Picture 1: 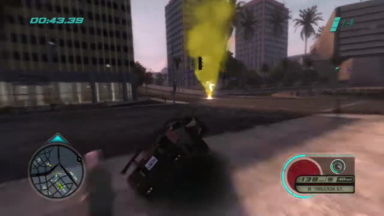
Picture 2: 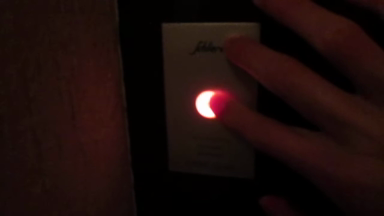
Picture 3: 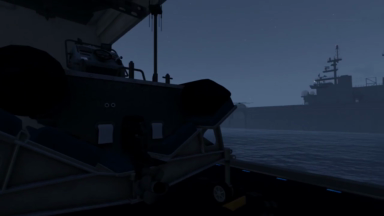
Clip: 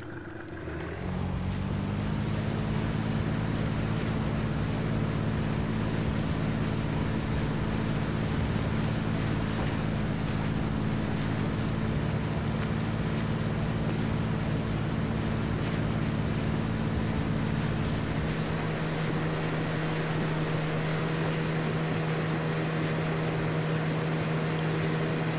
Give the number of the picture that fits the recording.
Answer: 3